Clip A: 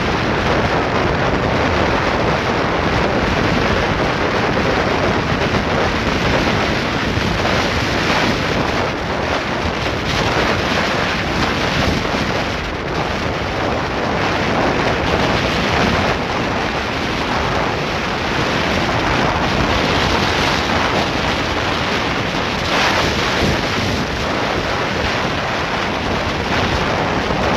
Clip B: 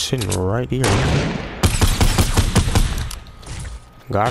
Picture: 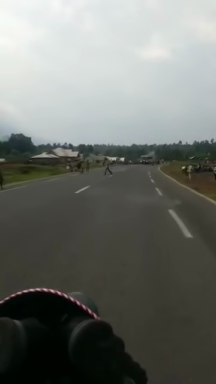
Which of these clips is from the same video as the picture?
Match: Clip A